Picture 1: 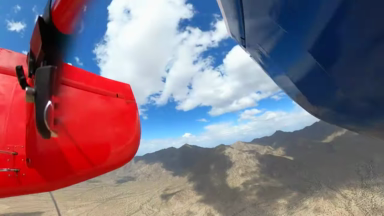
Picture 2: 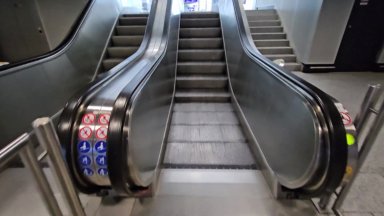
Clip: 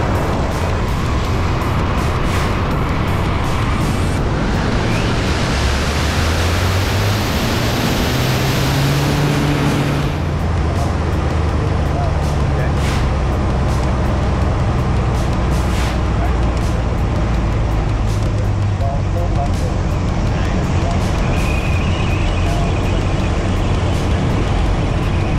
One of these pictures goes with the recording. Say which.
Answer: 1